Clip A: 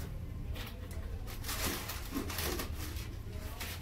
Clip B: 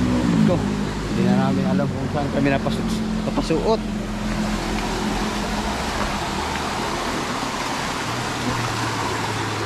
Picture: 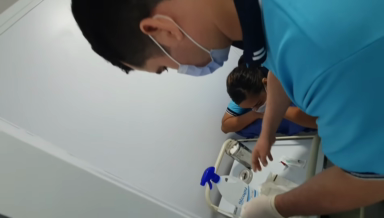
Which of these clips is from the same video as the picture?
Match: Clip A